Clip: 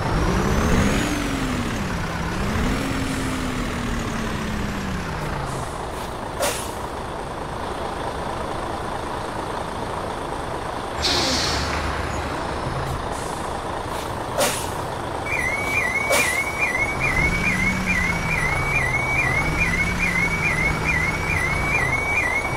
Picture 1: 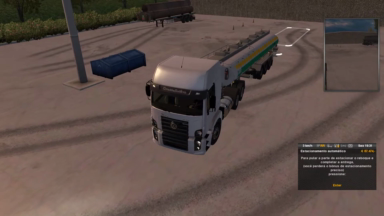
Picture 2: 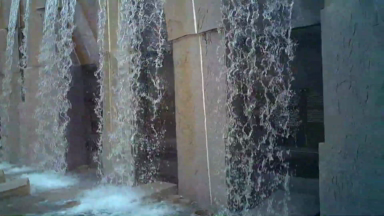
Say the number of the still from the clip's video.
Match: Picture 1